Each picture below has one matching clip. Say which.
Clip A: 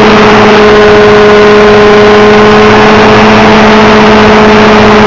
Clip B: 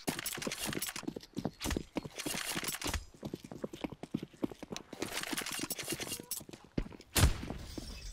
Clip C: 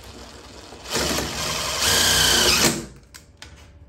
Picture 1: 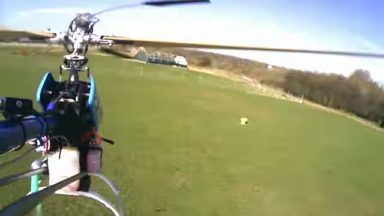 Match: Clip A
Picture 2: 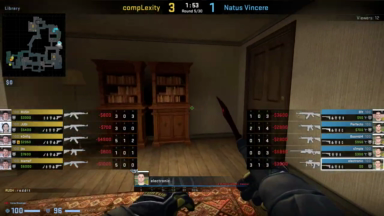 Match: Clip B